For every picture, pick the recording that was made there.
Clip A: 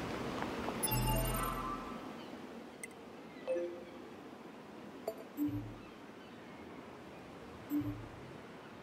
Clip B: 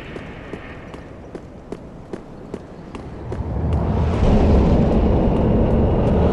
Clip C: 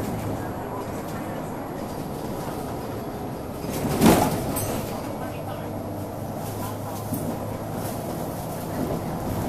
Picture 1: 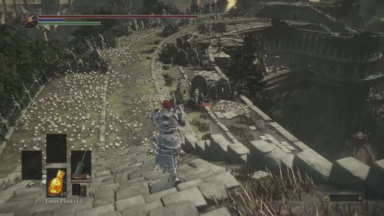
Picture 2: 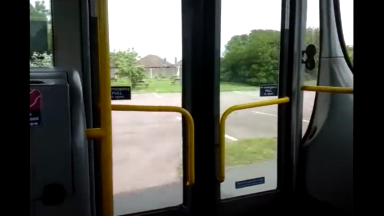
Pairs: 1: B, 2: C